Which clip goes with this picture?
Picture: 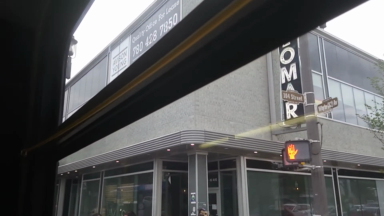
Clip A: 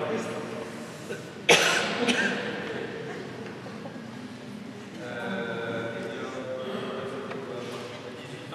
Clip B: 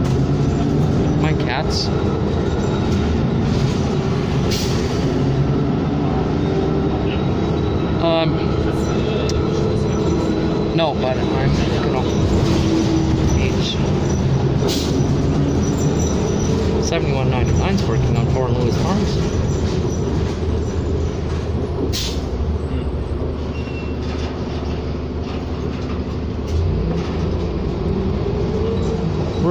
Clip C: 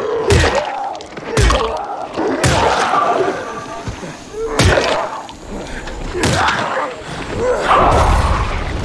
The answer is B